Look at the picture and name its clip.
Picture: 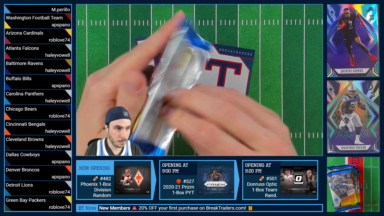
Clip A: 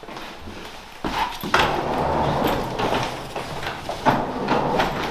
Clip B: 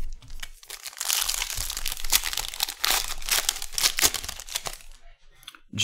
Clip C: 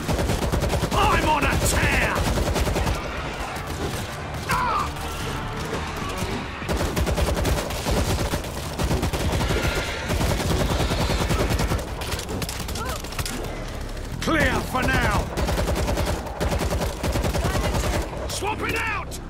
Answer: B